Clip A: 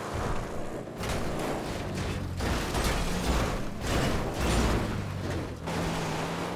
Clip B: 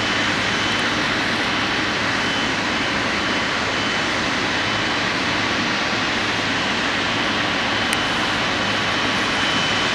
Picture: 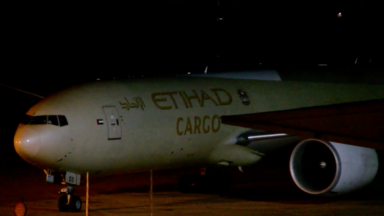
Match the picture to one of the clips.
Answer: B